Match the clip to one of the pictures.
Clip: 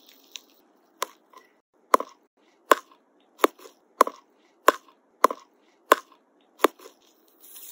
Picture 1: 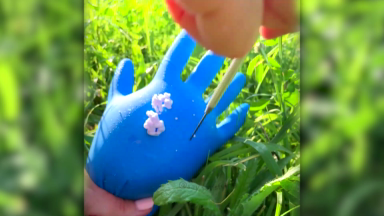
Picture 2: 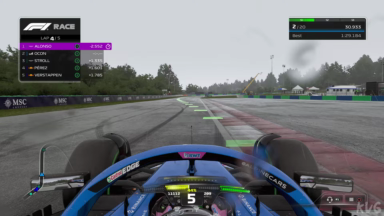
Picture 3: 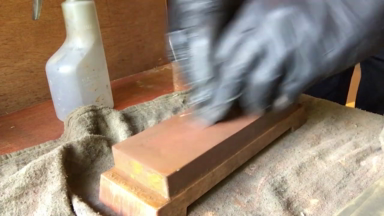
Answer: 1